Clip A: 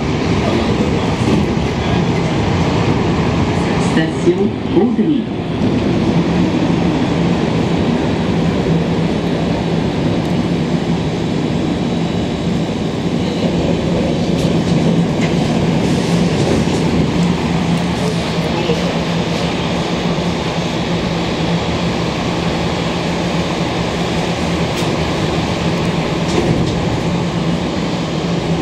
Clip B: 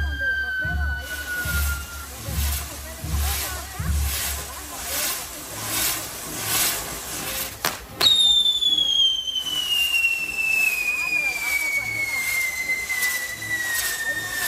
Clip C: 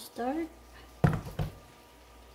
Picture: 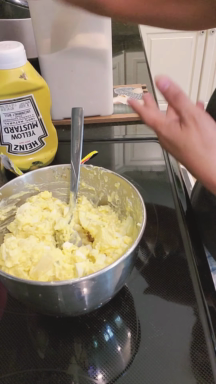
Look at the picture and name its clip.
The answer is C